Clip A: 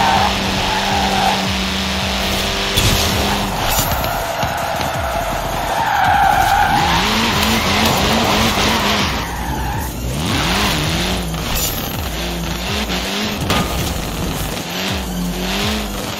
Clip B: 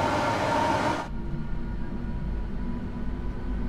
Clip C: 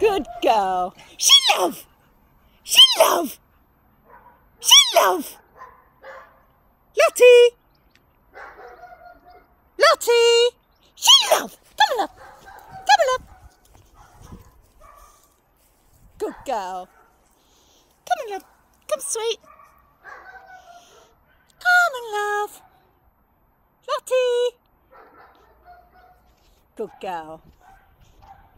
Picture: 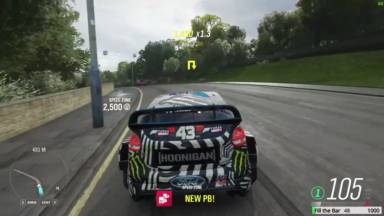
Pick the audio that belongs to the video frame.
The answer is A